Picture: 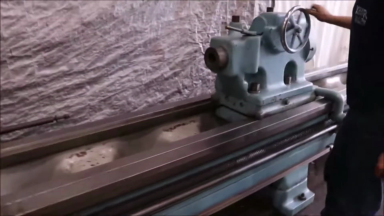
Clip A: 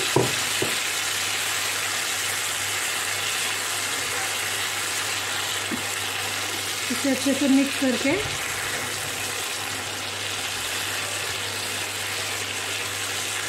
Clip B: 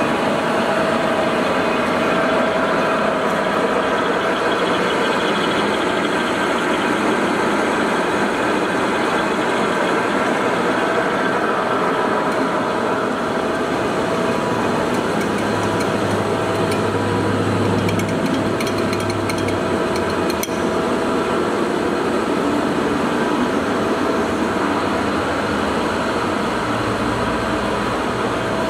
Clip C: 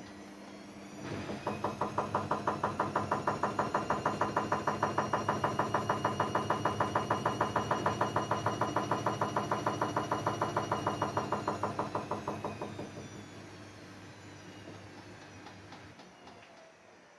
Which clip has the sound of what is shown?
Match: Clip B